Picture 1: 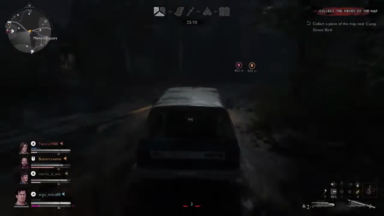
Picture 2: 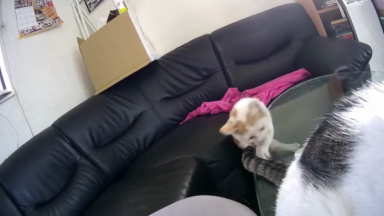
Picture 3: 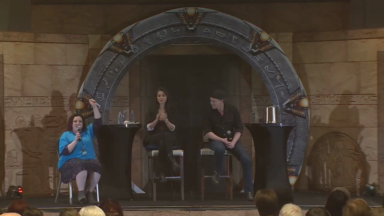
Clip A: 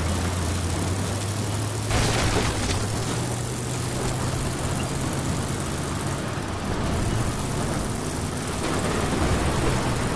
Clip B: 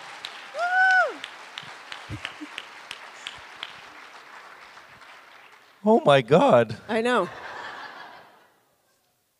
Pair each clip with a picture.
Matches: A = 1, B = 3